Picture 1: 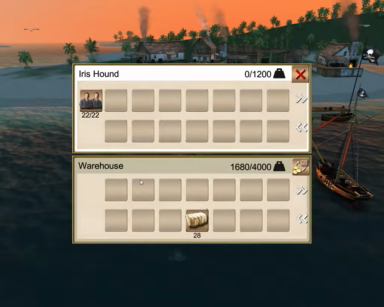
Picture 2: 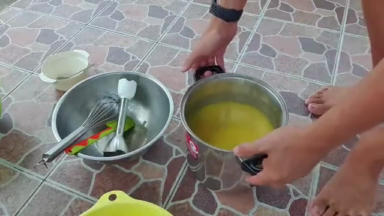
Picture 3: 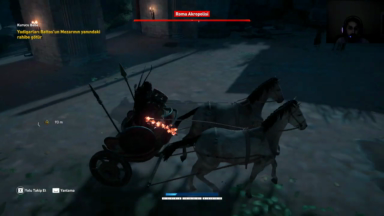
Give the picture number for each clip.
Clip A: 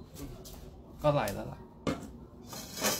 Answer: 2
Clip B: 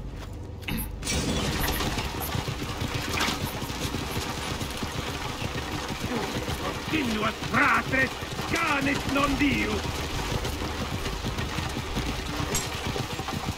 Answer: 3